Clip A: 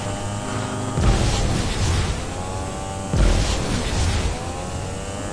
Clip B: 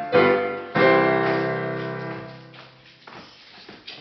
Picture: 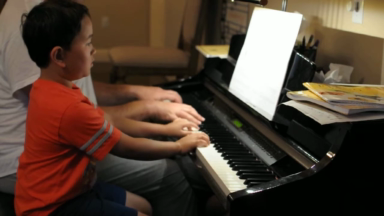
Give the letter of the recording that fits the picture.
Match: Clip B